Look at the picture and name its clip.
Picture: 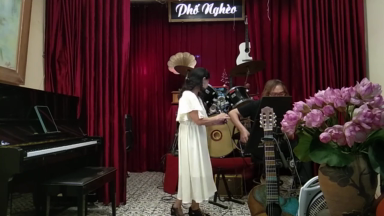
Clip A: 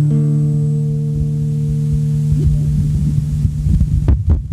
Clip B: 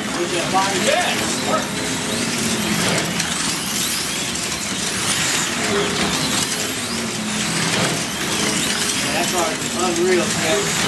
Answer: A